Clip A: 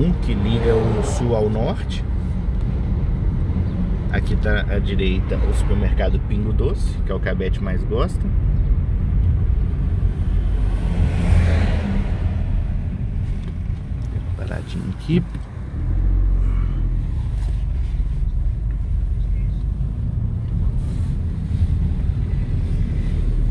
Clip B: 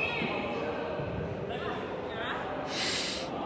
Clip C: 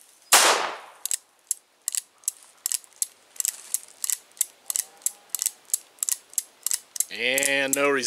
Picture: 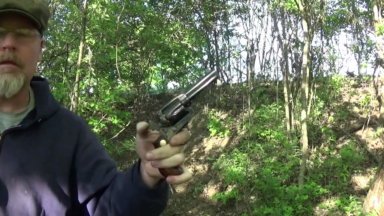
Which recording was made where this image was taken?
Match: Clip C